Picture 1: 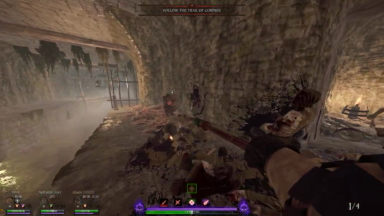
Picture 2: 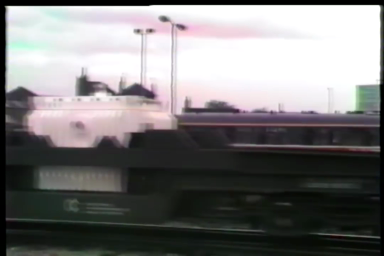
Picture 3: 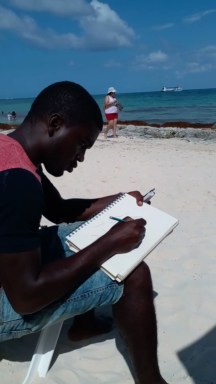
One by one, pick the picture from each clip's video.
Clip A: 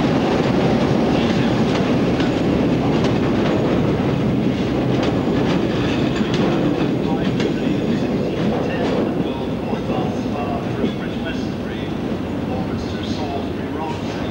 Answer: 2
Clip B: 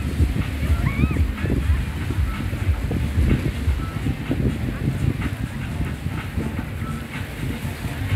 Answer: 3